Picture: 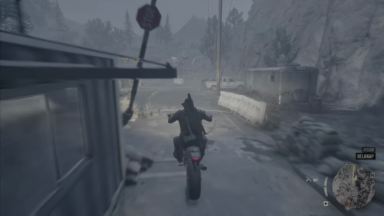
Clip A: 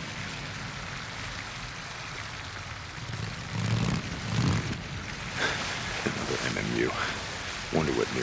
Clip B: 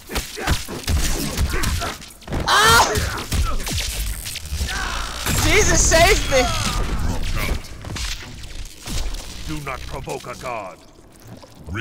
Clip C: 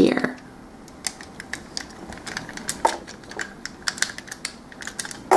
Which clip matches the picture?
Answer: A